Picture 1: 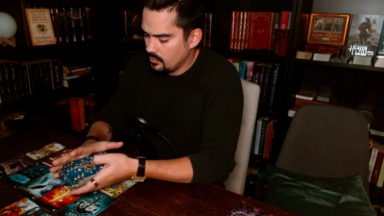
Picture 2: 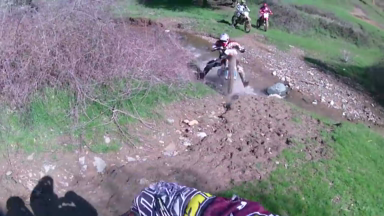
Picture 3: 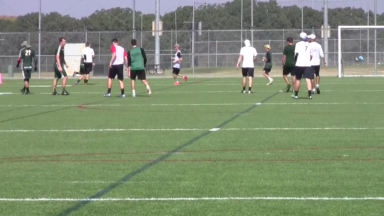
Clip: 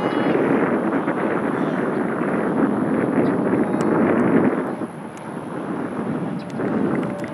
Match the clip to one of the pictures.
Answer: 3